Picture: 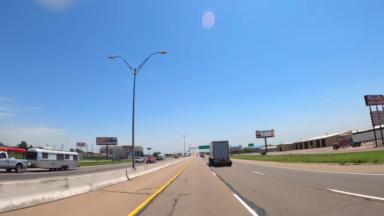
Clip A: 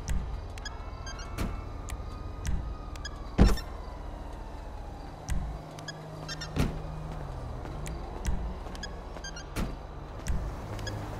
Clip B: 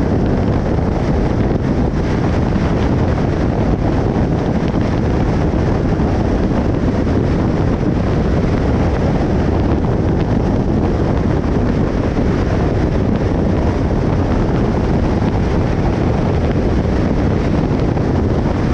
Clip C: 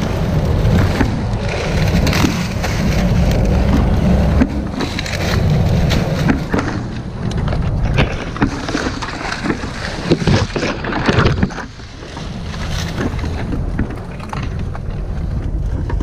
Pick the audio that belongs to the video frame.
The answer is B